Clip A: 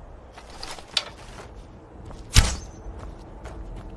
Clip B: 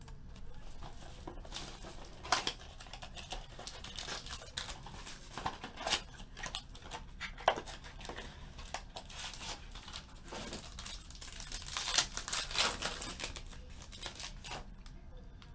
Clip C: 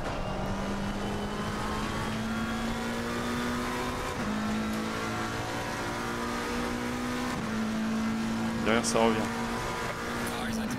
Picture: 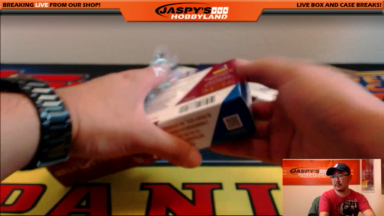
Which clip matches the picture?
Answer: B